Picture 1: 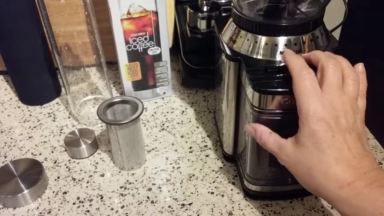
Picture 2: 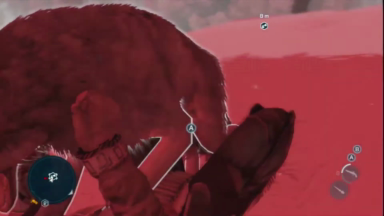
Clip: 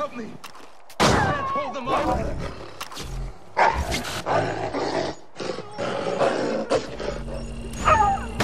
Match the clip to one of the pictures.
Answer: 2